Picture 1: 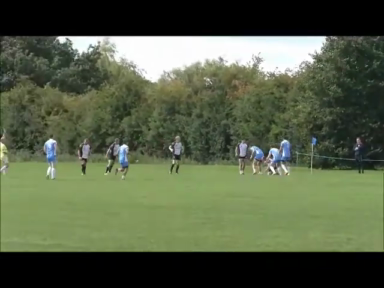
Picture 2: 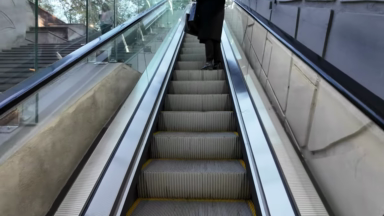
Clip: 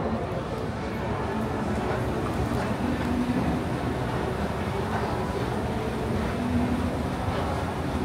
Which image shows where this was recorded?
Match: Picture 2